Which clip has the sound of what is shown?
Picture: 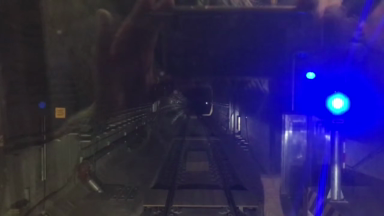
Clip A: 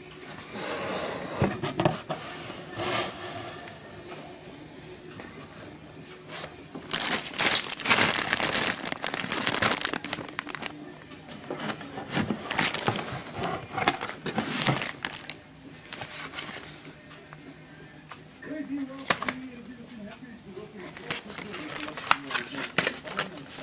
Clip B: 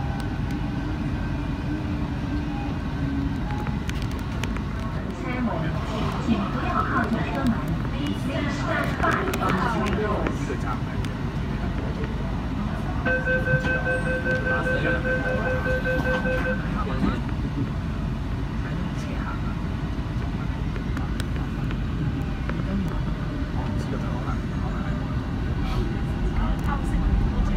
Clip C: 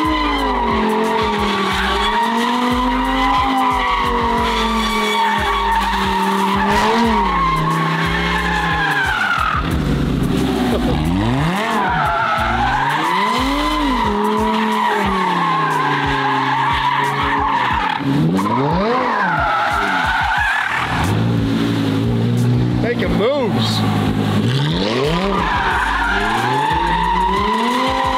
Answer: B